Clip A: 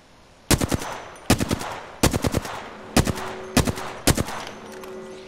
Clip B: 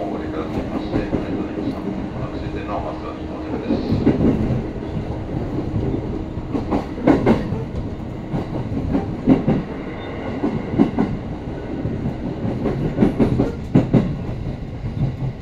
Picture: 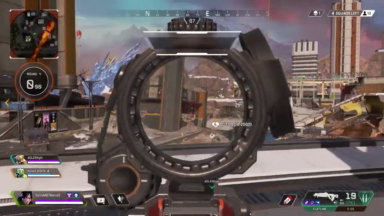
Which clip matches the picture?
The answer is A